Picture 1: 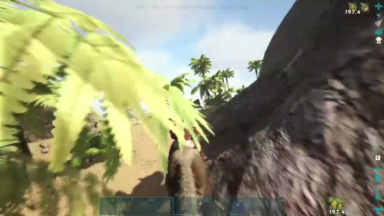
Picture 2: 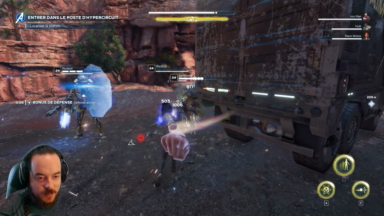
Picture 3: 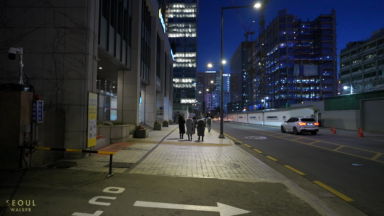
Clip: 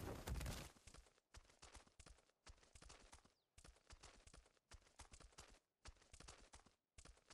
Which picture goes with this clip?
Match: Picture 1